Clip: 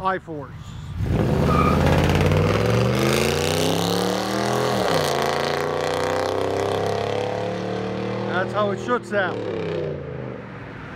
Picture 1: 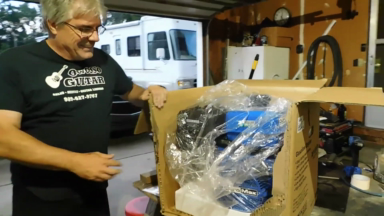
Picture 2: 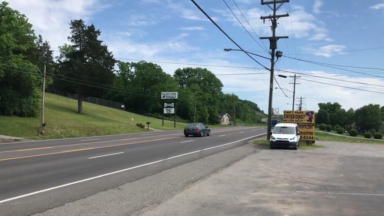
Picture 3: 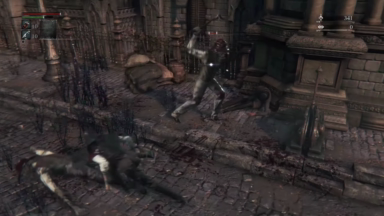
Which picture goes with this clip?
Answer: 2